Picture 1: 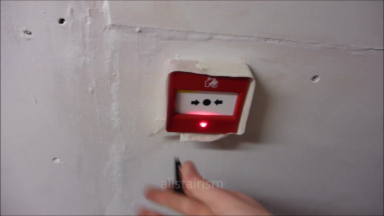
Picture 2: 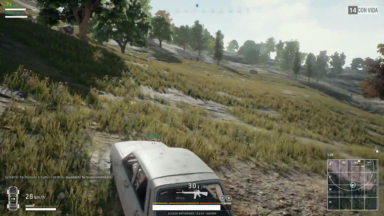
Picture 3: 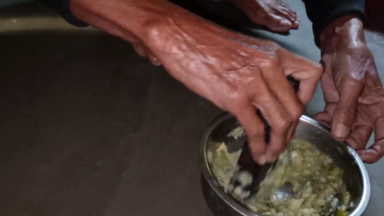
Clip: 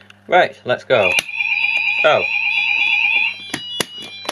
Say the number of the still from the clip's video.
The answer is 1